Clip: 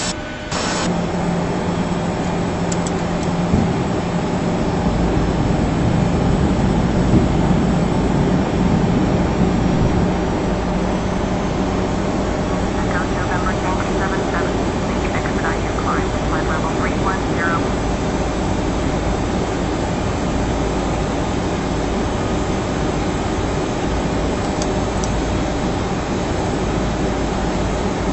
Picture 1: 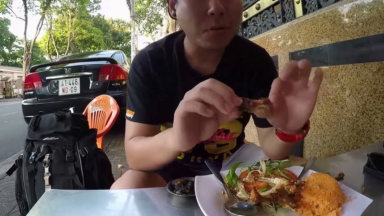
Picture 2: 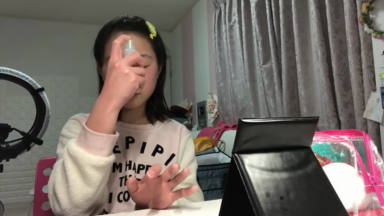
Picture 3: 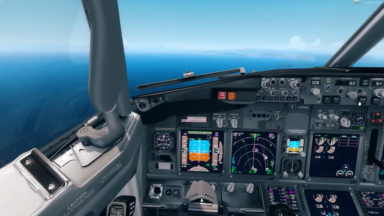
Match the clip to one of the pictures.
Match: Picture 3